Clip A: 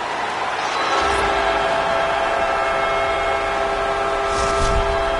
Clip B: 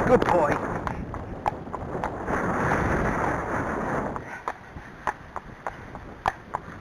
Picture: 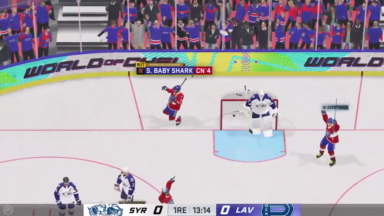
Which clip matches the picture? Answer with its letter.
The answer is A